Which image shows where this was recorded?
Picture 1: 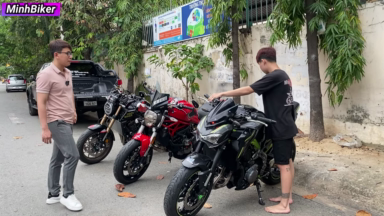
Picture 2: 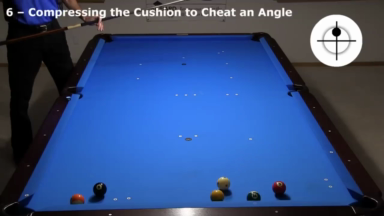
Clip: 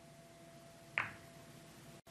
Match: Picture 2